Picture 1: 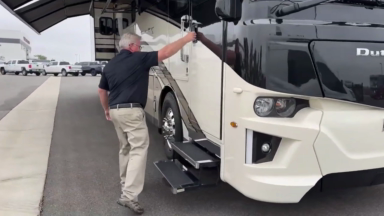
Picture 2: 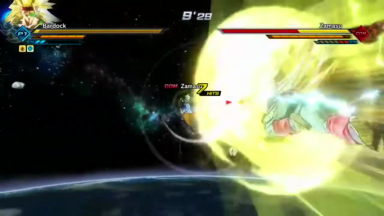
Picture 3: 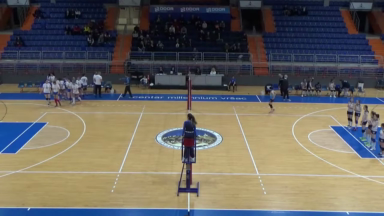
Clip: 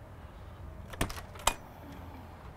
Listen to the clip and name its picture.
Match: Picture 1